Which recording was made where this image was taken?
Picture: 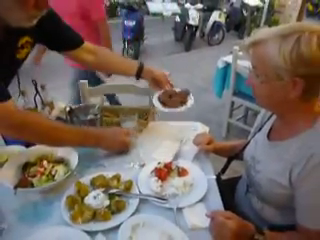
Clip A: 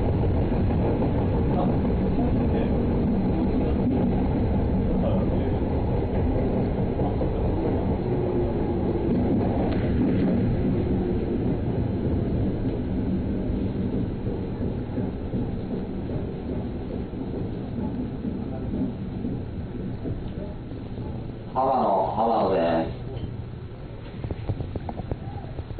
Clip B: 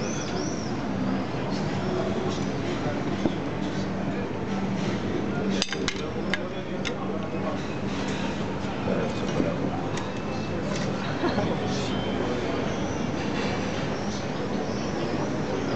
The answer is B